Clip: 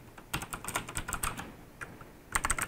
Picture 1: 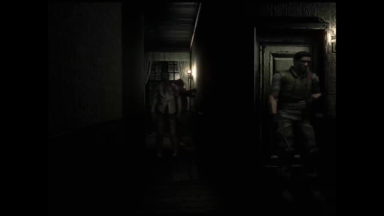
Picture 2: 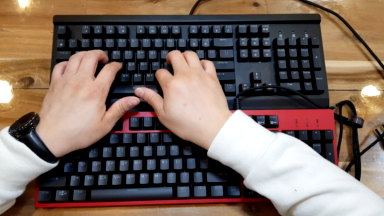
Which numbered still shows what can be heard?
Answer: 2